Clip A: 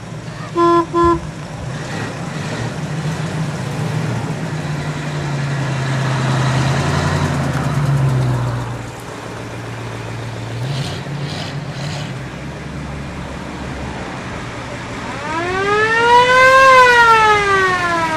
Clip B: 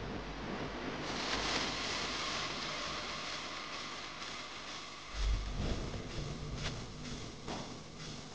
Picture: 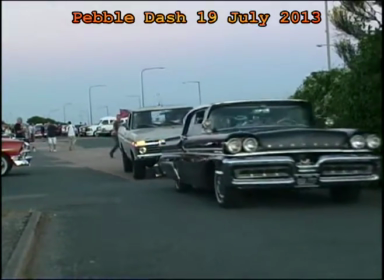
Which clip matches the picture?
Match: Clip A